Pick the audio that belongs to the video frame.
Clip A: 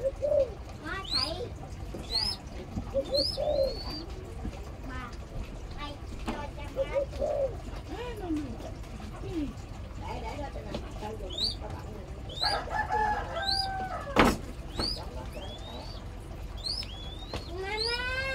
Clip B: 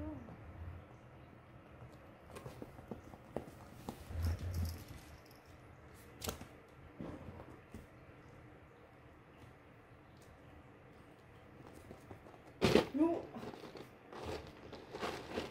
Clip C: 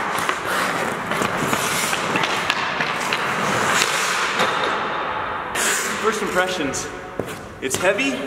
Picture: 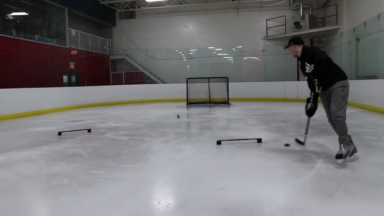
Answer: C